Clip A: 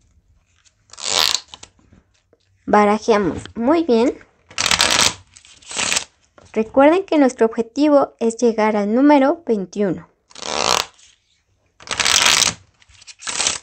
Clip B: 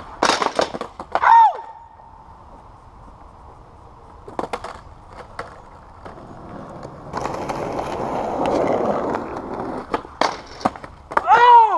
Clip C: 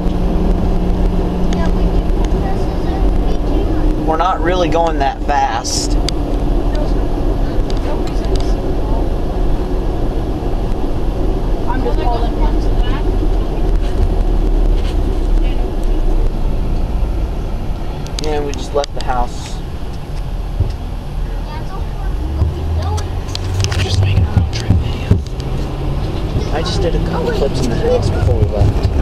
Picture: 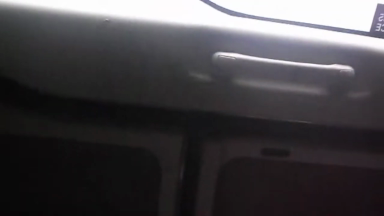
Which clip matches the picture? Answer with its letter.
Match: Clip C